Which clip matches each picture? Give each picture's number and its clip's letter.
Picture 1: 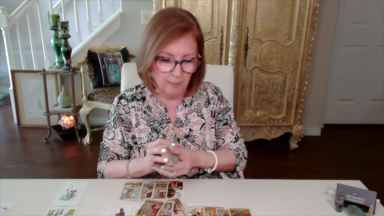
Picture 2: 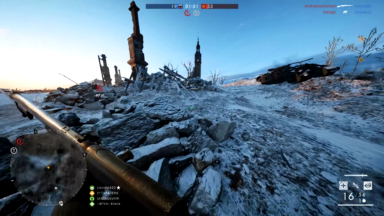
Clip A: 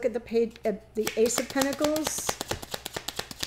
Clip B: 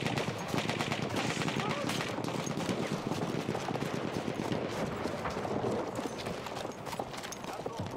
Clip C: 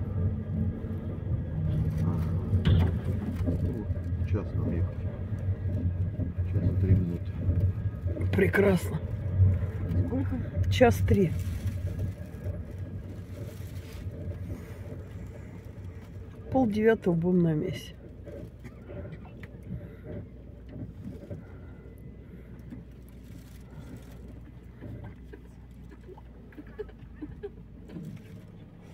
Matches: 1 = A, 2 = B